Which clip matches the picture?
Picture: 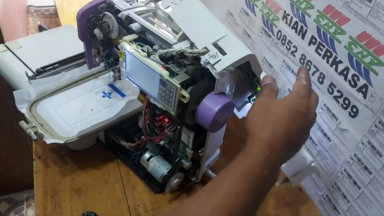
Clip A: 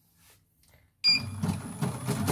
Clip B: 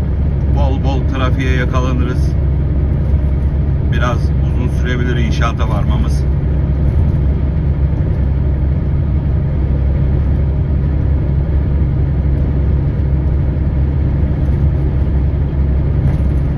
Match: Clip A